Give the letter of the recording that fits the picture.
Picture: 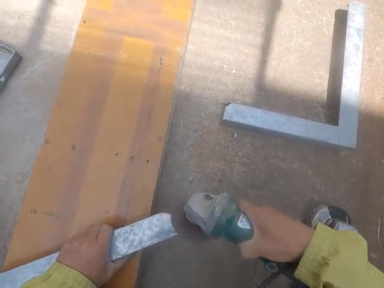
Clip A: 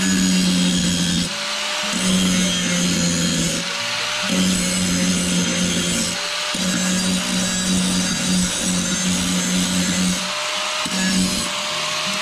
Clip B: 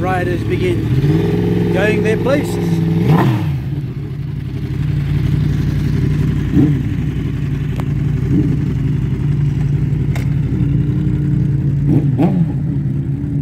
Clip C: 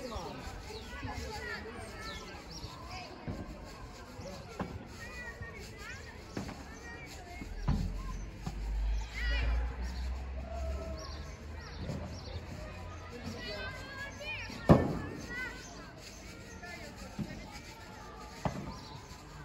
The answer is A